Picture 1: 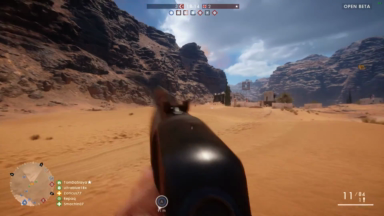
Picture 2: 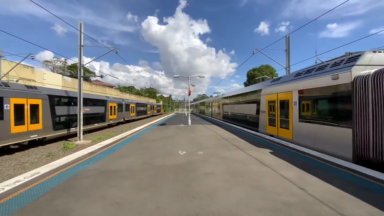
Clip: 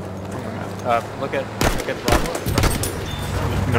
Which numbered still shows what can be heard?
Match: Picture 1